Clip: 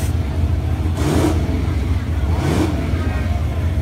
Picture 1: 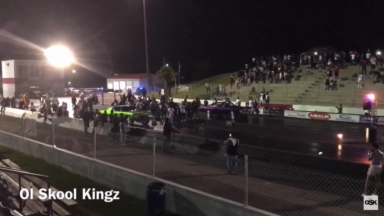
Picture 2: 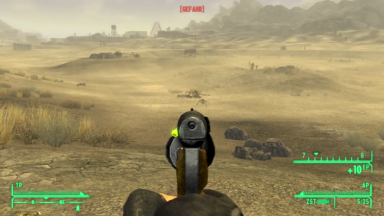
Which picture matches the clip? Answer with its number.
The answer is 1